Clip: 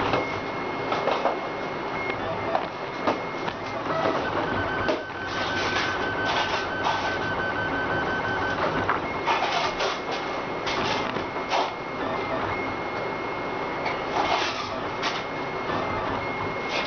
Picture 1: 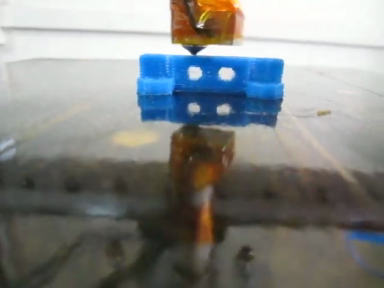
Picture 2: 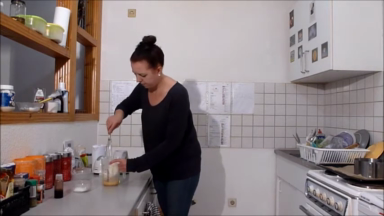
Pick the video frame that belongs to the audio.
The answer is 1